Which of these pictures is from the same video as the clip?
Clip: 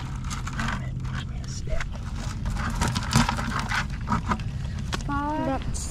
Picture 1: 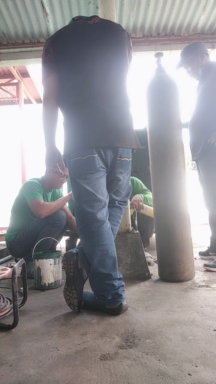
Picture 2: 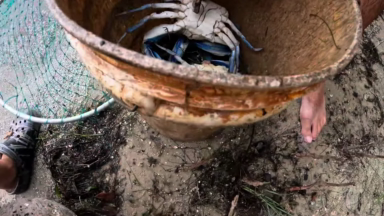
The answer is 2